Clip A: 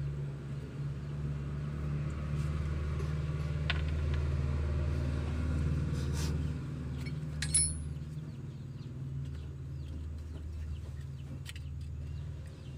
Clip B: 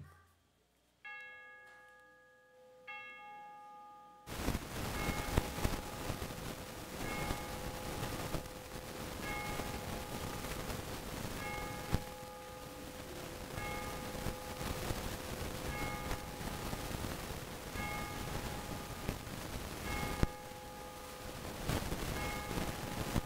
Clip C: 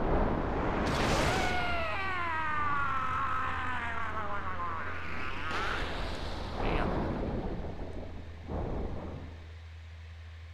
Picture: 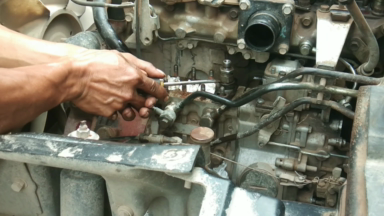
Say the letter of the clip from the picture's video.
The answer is A